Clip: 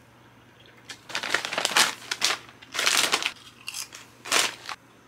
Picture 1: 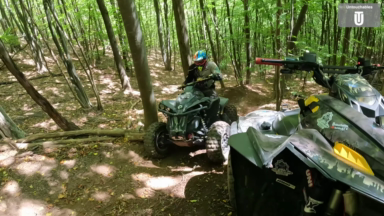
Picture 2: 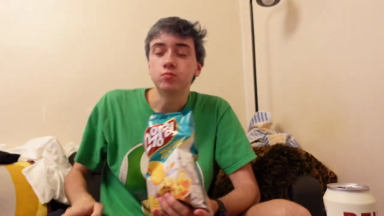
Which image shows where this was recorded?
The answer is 2